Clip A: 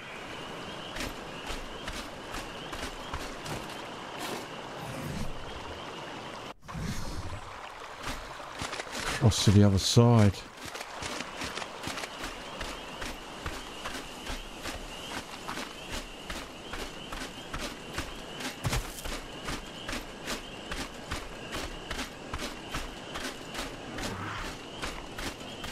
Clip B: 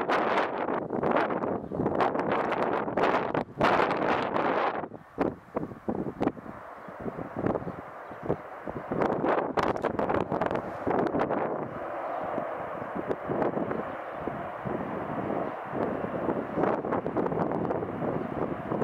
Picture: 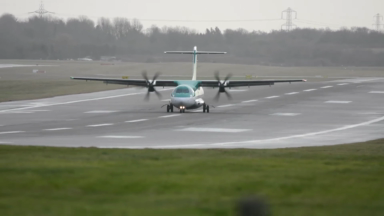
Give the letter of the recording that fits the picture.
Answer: B